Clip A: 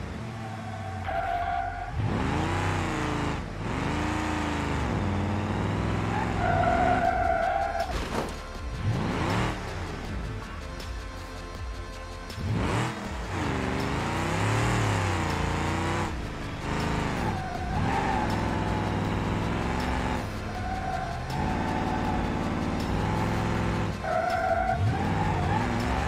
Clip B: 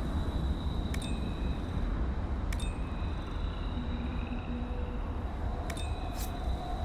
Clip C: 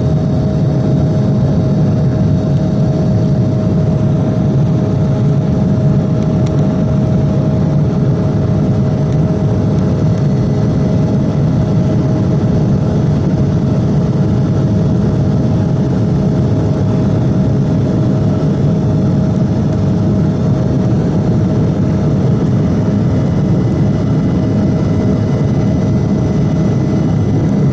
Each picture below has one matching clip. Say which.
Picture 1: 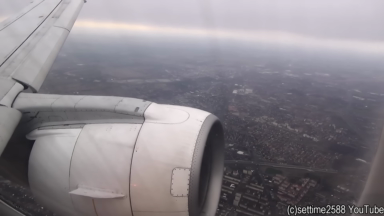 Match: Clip C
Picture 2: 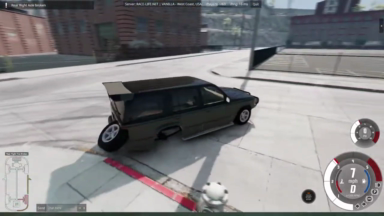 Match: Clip A